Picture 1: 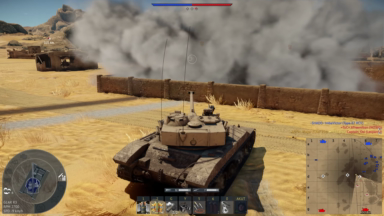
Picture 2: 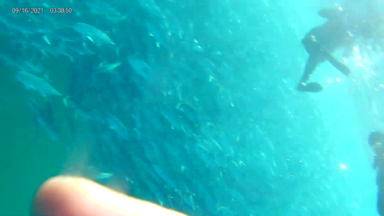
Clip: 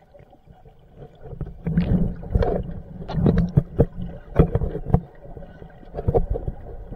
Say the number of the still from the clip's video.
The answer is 2